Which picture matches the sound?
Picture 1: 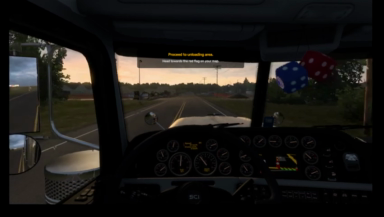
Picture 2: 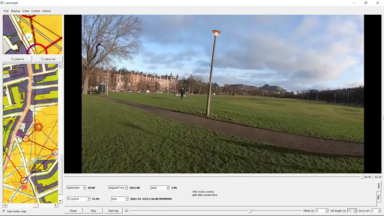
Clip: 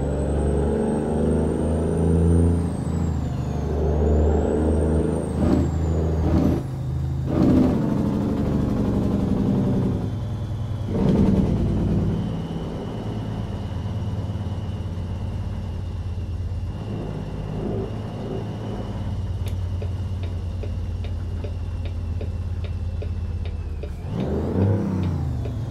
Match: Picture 1